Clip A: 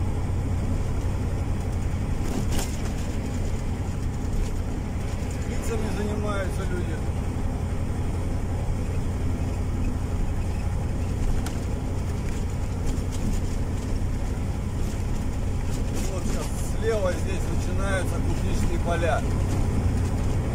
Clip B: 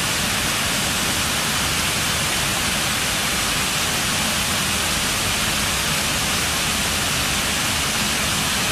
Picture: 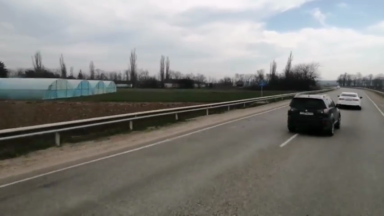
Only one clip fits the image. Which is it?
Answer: A